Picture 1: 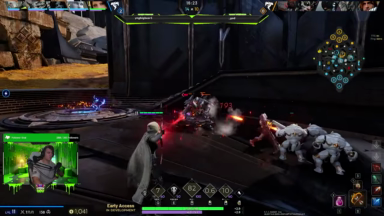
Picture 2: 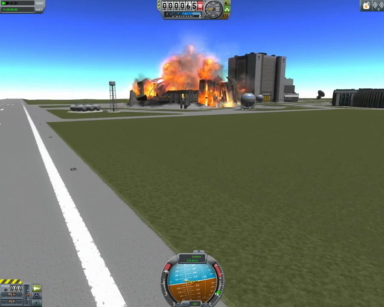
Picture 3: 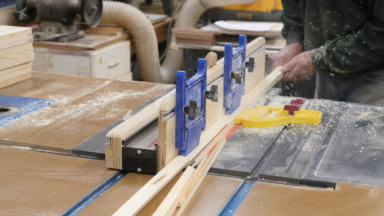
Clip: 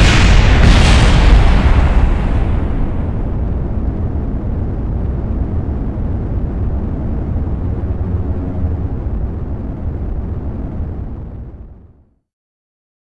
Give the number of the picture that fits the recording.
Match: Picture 2